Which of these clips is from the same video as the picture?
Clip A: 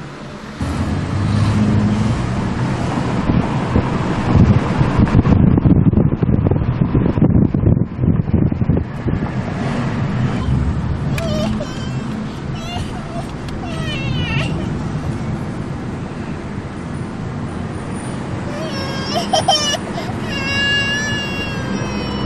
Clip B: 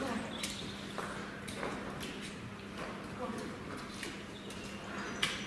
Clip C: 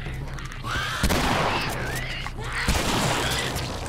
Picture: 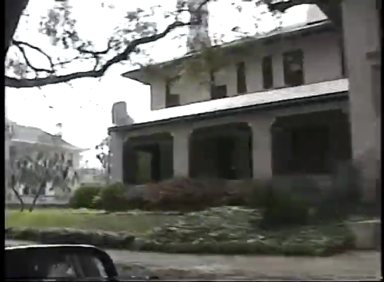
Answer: A